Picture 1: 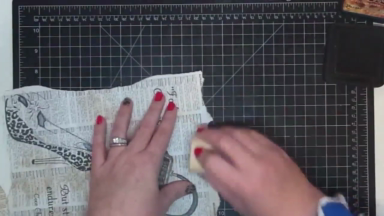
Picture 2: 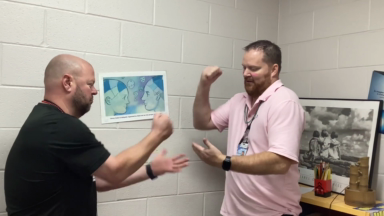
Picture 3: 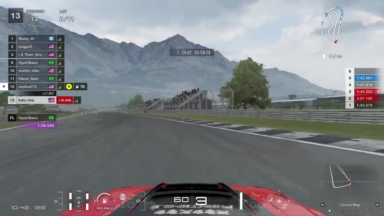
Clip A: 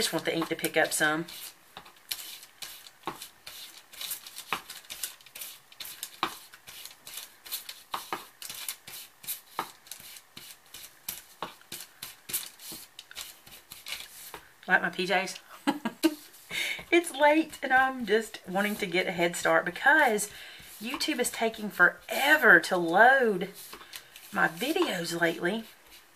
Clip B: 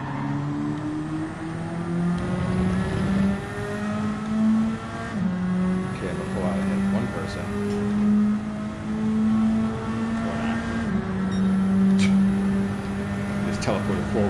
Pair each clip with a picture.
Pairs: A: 1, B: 3